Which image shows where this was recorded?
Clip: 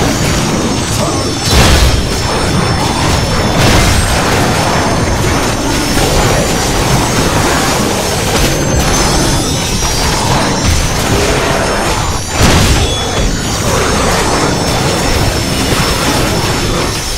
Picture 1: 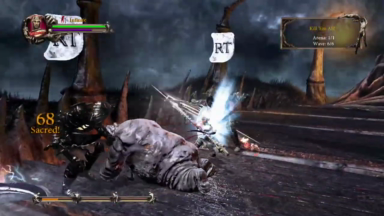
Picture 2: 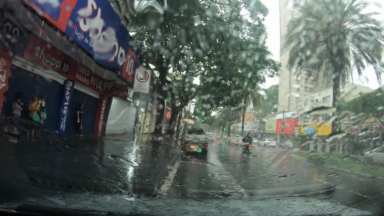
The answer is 1